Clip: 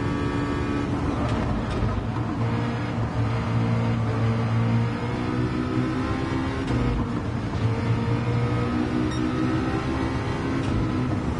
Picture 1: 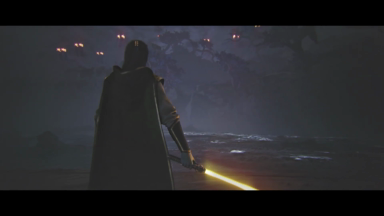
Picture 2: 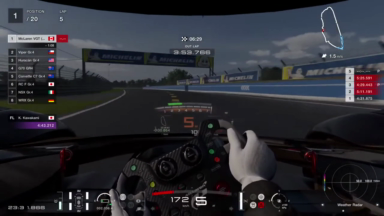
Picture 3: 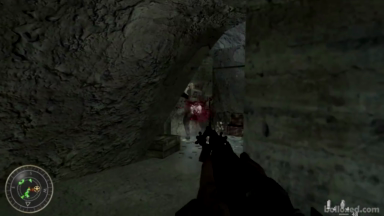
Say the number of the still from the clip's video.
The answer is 2